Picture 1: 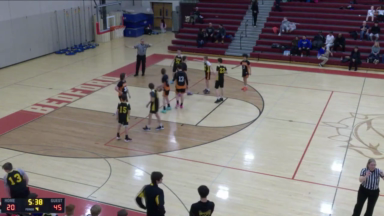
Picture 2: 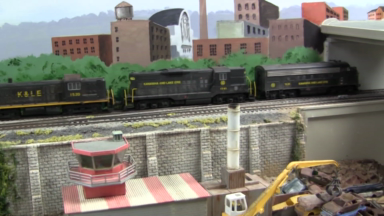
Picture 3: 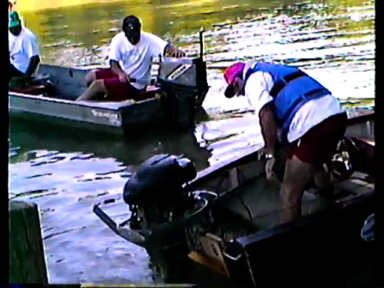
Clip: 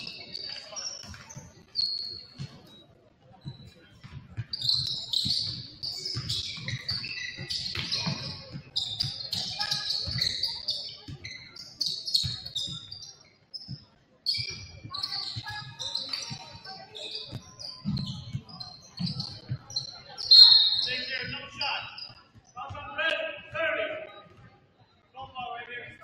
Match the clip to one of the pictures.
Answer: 1